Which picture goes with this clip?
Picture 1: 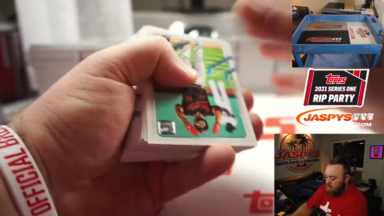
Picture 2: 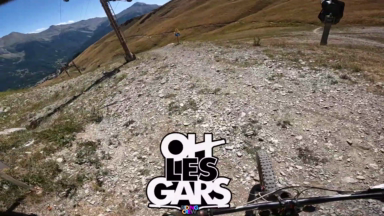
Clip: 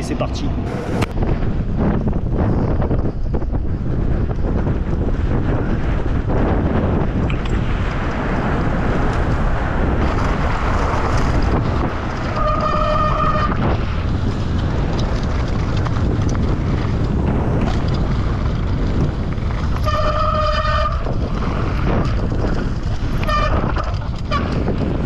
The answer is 2